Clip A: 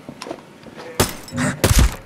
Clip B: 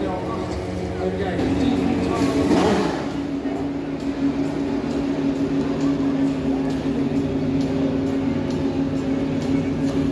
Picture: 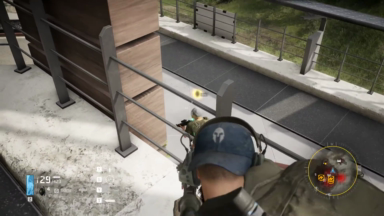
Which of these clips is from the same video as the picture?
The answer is A